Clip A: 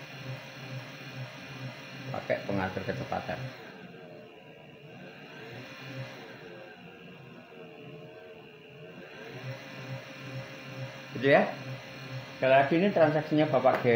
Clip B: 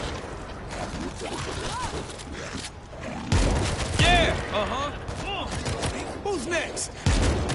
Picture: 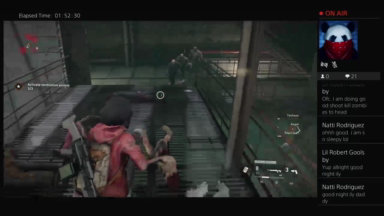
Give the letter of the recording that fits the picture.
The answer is B